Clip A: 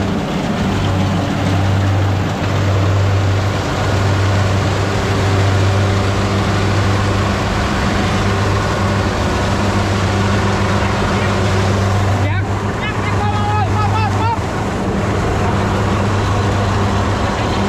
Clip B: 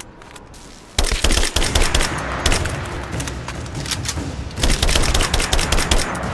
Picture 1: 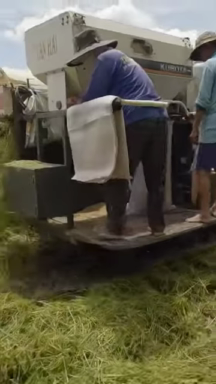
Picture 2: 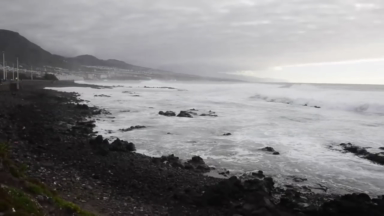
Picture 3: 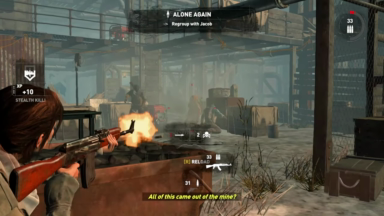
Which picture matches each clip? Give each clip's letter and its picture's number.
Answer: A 1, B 3